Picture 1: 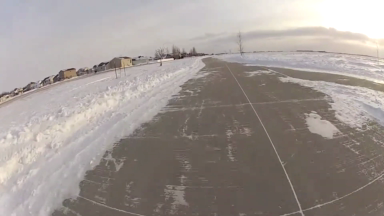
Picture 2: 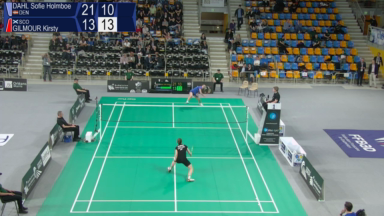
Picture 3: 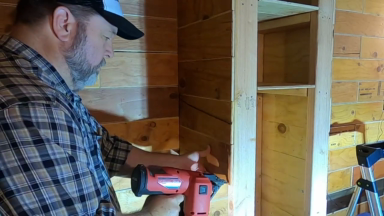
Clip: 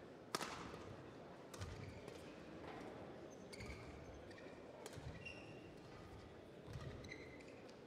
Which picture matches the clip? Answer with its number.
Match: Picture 2